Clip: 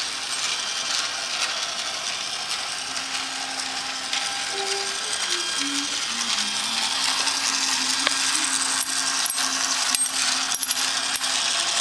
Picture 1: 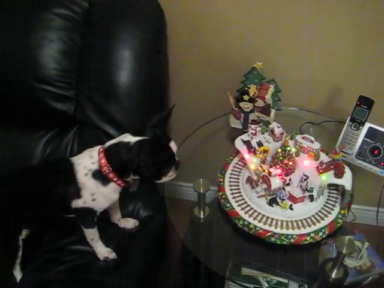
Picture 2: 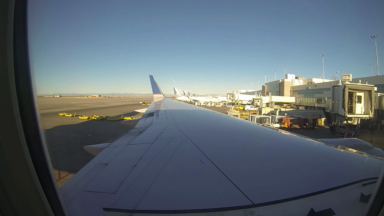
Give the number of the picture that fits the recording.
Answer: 1